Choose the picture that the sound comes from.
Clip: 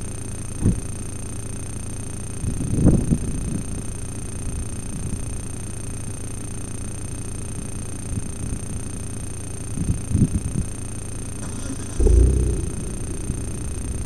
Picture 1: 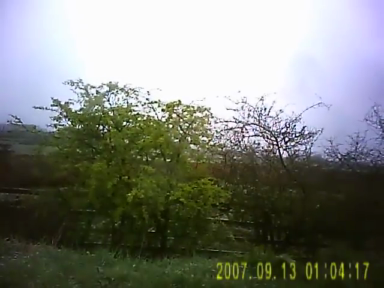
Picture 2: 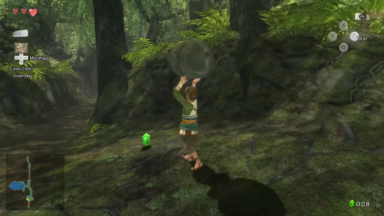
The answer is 1